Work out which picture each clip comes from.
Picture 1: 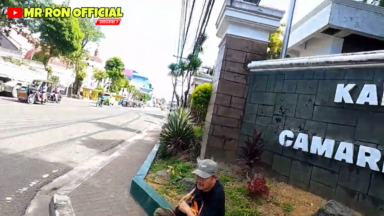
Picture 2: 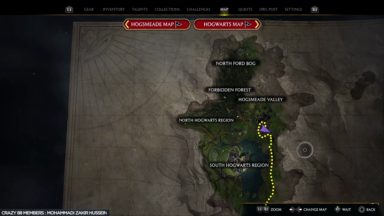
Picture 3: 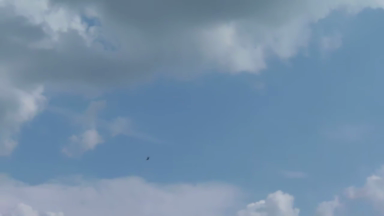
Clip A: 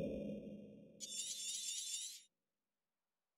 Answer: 2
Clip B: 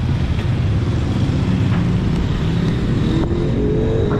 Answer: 1